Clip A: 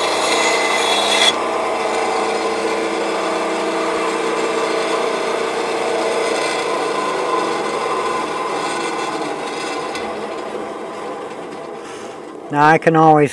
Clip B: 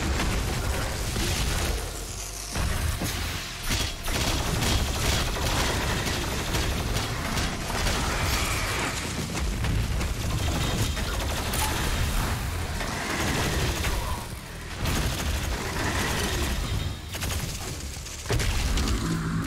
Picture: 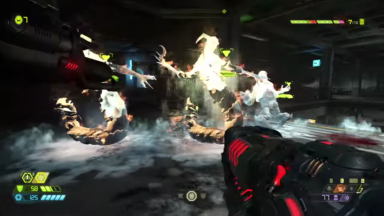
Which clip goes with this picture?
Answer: B